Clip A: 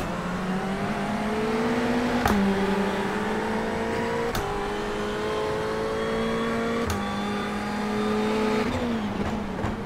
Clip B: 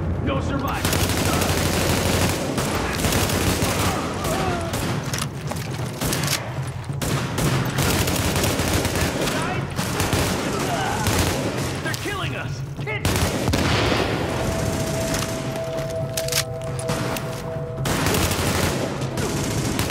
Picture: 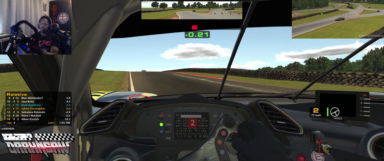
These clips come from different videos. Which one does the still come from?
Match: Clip A